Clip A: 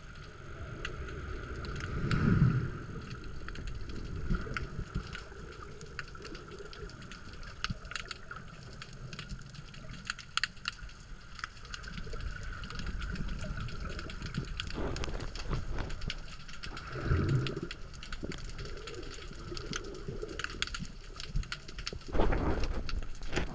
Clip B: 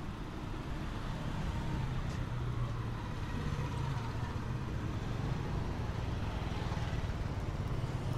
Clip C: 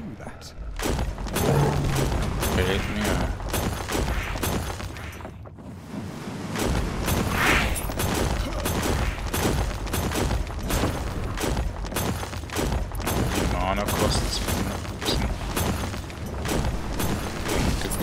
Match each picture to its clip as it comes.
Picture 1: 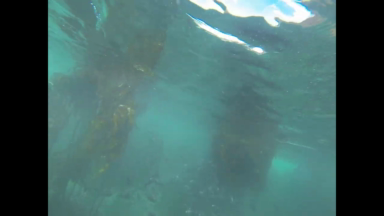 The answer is A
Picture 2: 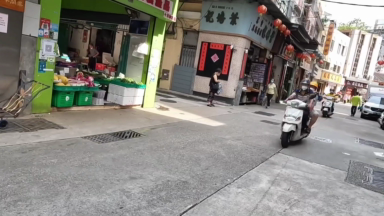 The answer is B